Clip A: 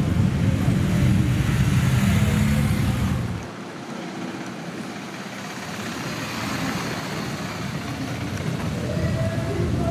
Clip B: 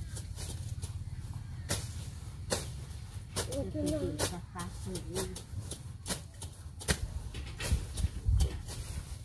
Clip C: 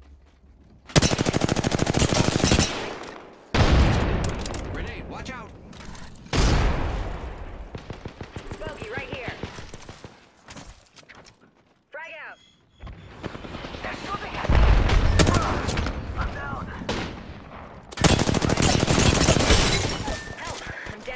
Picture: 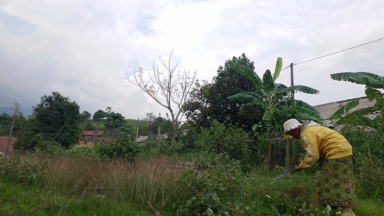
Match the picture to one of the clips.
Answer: B